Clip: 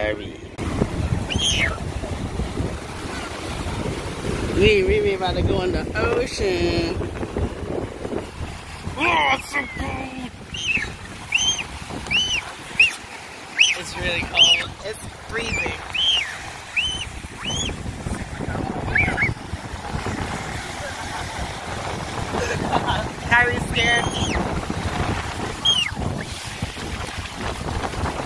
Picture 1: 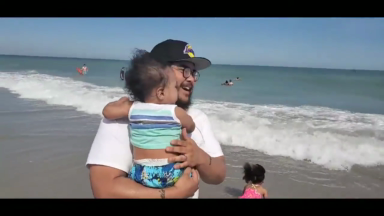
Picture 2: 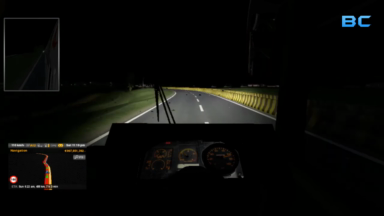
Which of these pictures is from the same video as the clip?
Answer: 1